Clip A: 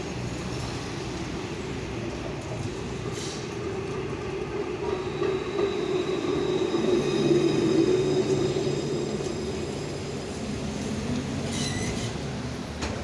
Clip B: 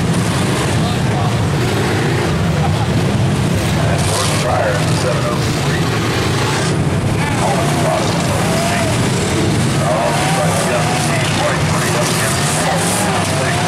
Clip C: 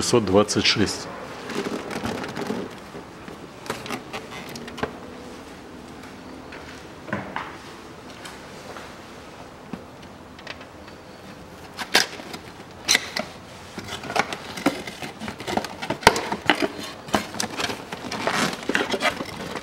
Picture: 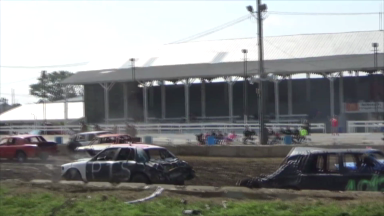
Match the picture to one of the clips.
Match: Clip B